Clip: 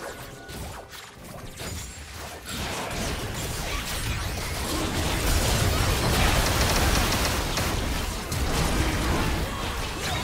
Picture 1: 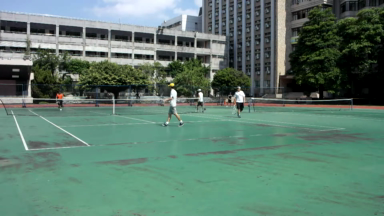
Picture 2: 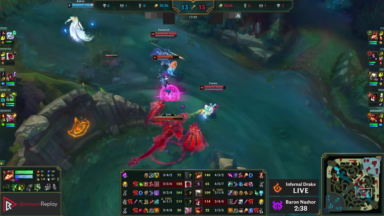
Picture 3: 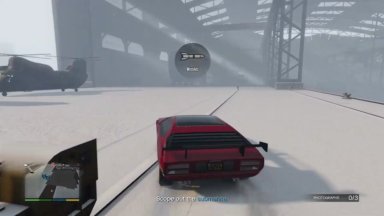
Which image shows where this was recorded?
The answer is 2